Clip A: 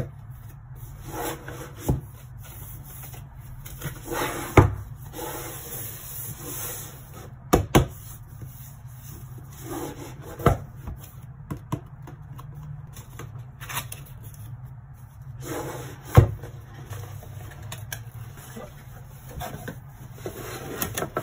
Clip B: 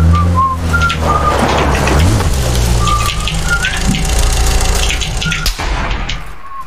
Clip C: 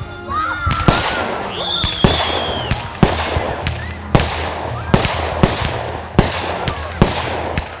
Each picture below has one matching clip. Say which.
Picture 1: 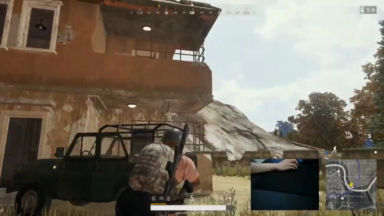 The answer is B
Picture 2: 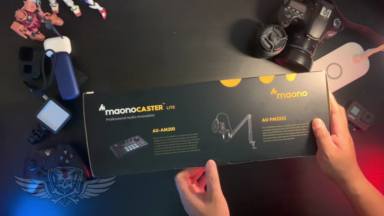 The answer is A